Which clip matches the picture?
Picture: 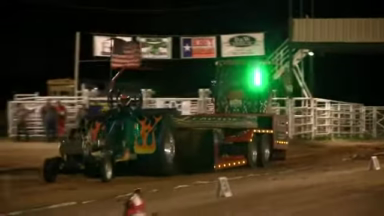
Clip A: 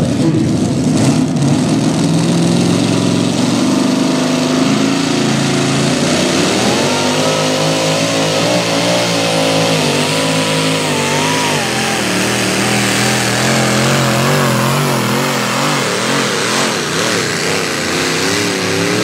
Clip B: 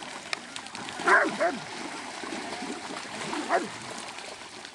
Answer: A